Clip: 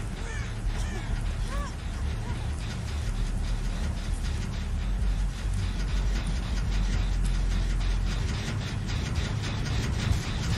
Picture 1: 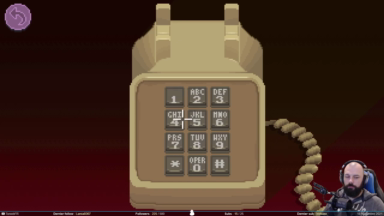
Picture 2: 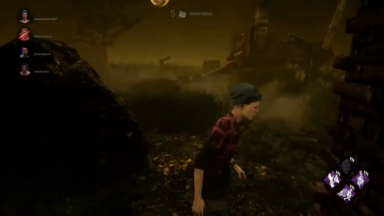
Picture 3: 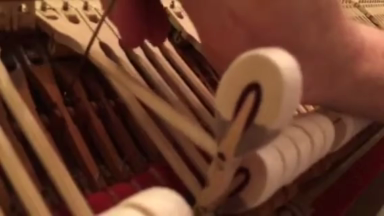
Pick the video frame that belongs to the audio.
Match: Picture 2